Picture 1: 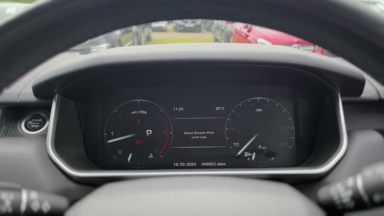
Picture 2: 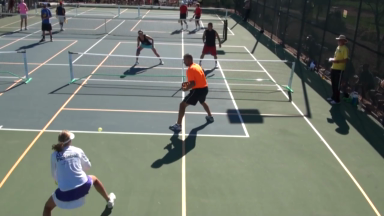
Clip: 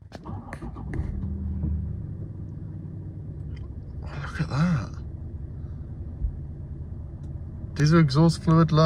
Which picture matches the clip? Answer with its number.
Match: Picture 1